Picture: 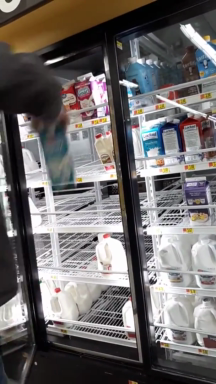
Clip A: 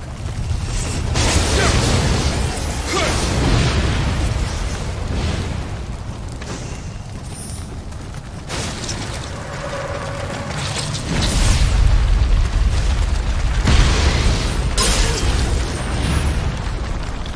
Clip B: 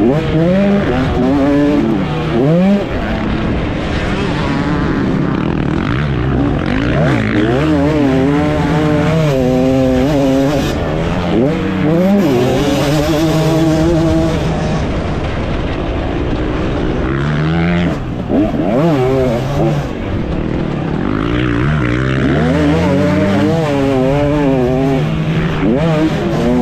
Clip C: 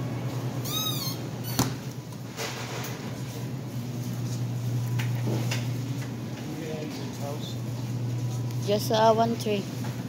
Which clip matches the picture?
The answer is C